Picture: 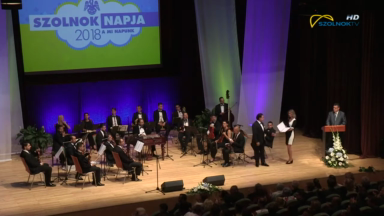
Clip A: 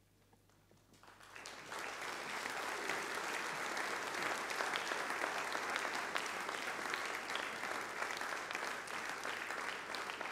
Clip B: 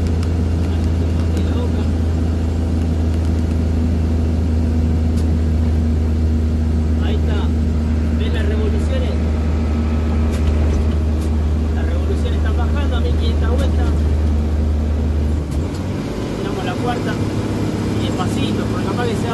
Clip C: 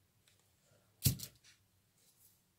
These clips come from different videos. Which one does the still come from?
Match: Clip A